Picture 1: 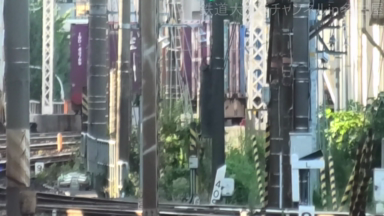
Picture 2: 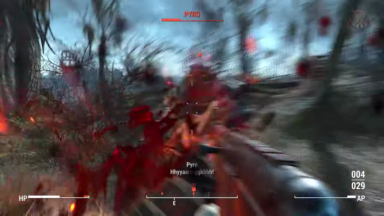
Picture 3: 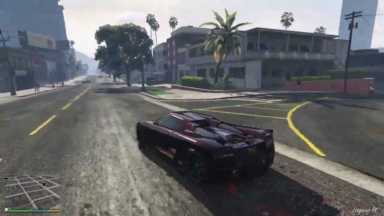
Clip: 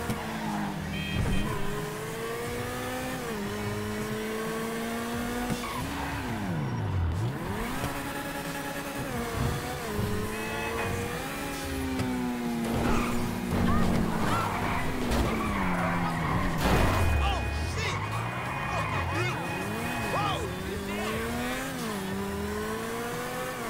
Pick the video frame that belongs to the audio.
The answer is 3